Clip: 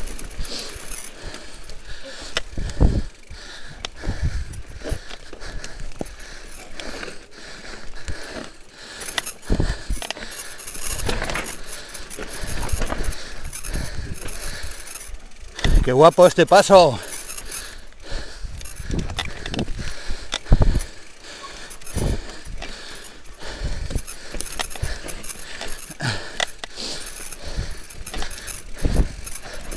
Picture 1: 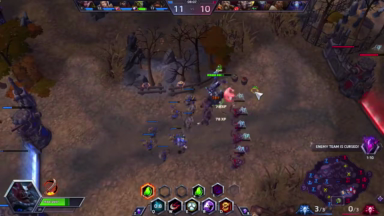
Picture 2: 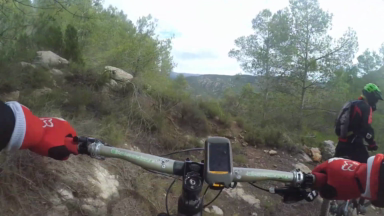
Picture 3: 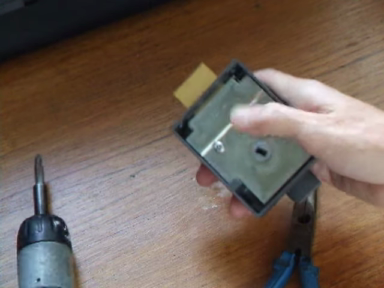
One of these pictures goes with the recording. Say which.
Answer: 2